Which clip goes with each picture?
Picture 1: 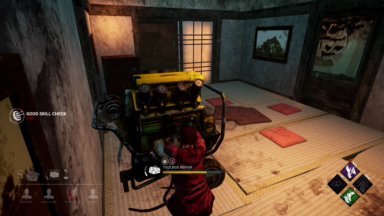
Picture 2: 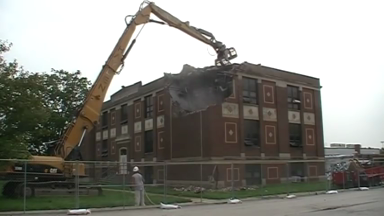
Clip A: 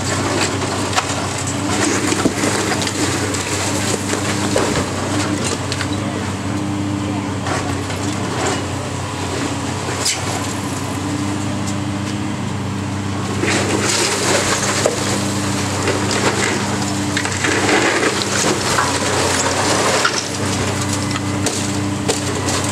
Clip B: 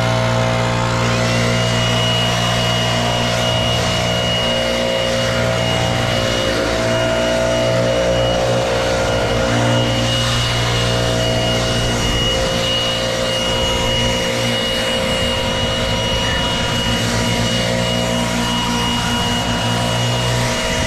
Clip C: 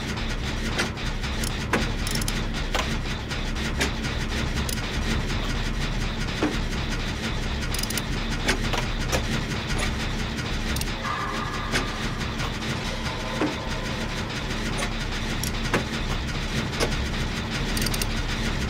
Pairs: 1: C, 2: A